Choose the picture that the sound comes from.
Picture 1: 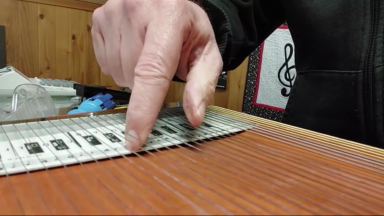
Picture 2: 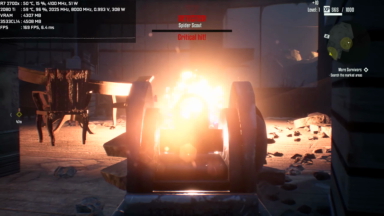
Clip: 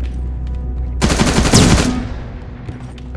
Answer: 2